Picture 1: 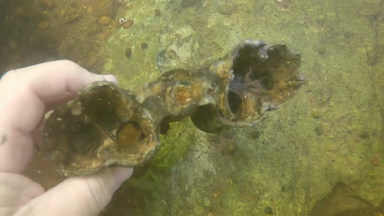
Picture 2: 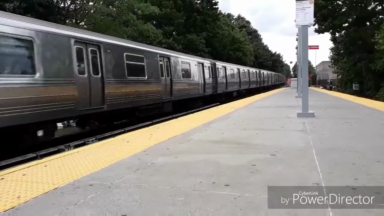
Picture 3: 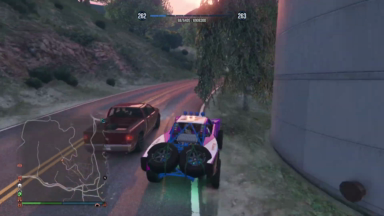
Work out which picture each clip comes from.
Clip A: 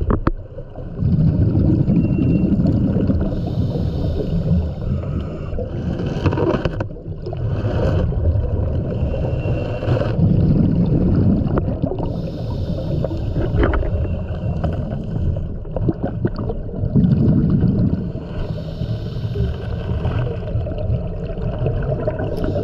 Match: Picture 1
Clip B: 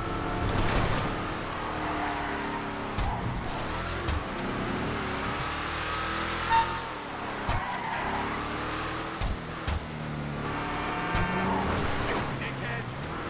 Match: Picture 3